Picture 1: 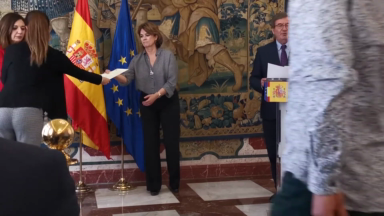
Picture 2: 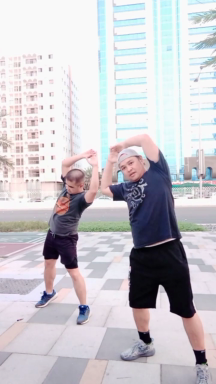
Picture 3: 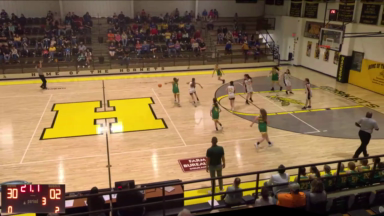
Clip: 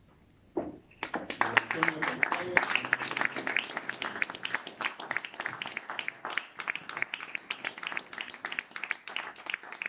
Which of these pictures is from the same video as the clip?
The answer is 1